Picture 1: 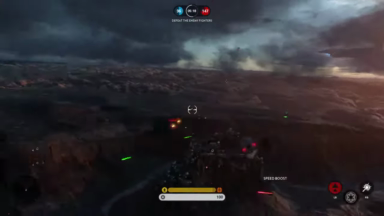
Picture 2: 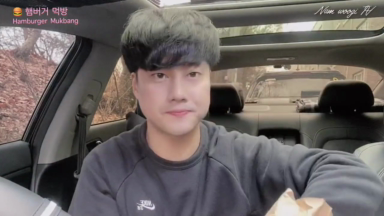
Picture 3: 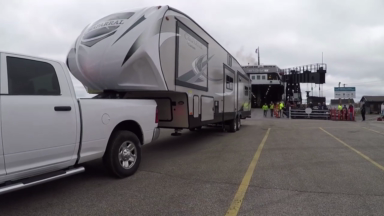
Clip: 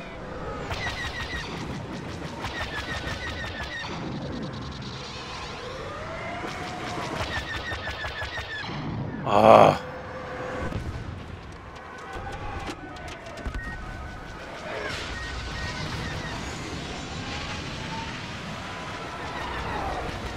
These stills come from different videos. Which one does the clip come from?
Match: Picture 1